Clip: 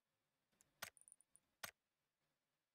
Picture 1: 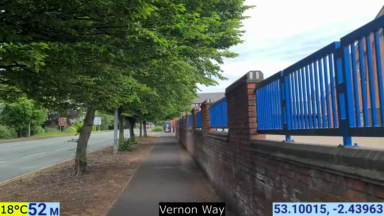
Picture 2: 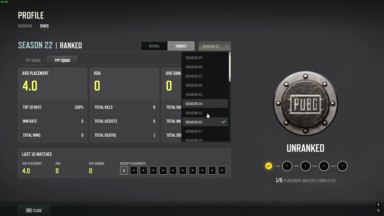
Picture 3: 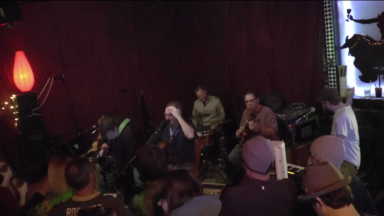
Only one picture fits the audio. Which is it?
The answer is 2